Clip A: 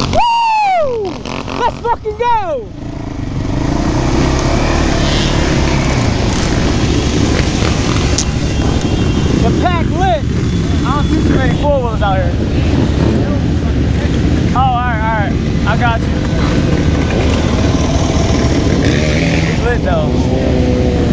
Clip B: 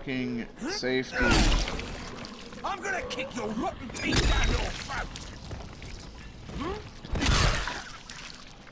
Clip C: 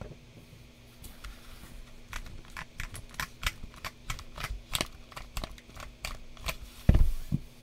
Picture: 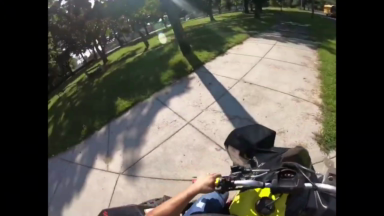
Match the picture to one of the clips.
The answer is A